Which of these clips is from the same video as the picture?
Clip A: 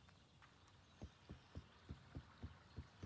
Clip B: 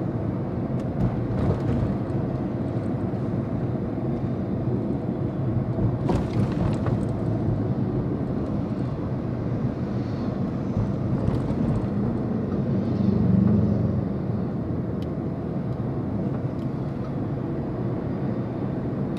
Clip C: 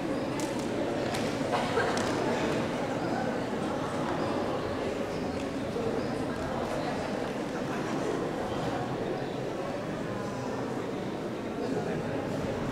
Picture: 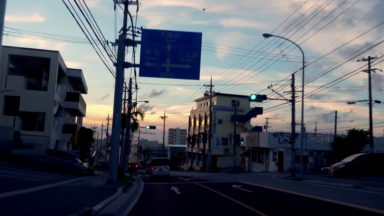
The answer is B